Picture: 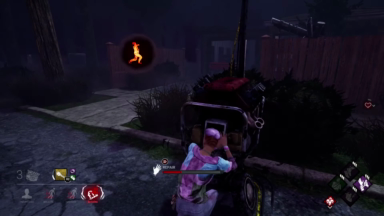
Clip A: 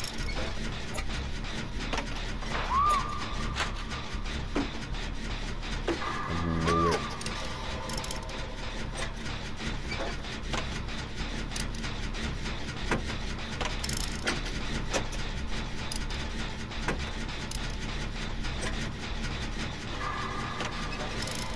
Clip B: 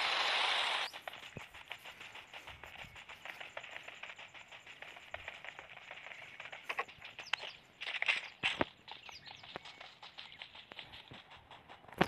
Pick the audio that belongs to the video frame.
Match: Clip A